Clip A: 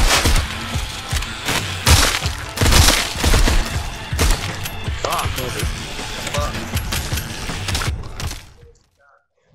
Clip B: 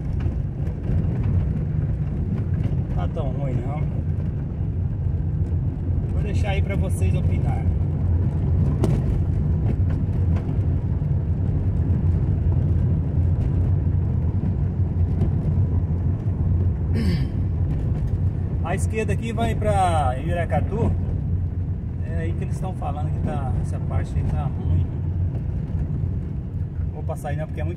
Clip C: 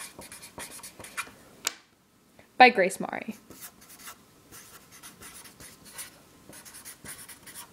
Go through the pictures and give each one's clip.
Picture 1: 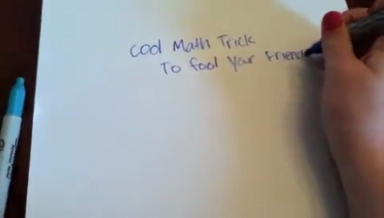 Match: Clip C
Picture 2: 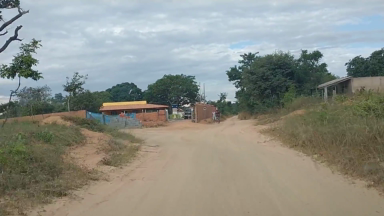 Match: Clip B